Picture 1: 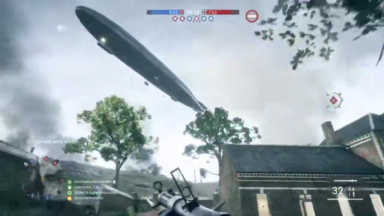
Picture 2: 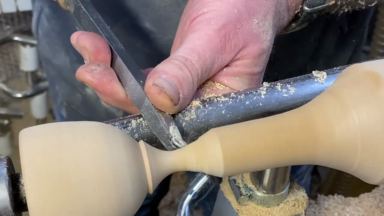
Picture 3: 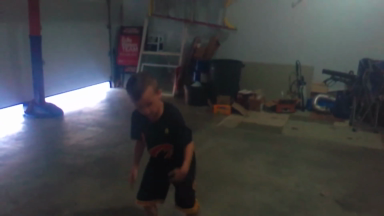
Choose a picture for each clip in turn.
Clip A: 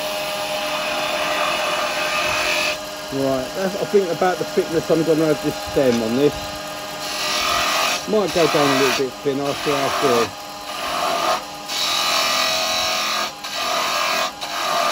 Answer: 2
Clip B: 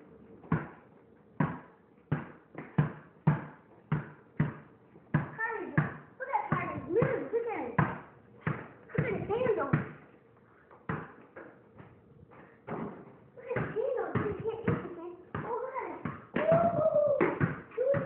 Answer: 3